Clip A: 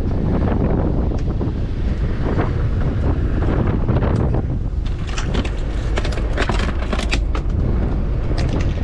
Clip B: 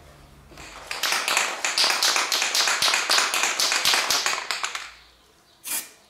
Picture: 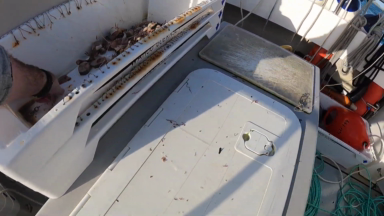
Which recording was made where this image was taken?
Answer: A